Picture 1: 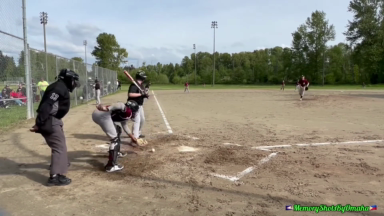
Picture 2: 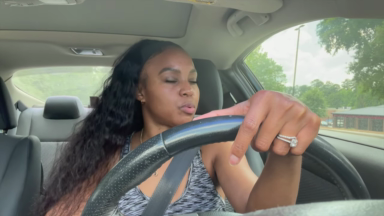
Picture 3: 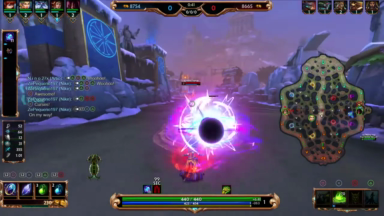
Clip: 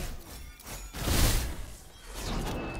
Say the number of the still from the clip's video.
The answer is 3